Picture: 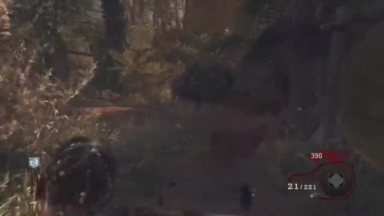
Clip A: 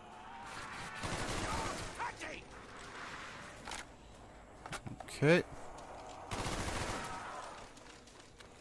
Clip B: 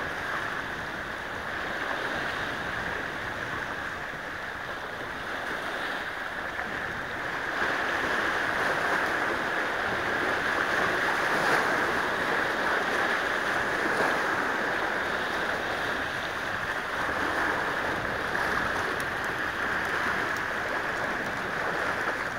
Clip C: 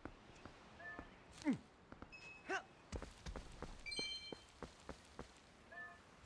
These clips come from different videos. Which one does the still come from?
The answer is A